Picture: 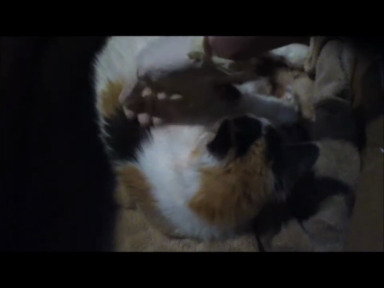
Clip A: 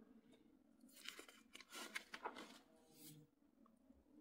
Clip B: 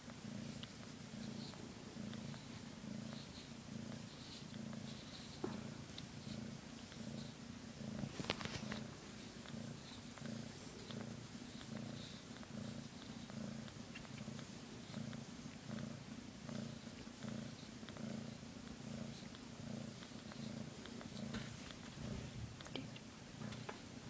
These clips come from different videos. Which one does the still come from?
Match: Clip B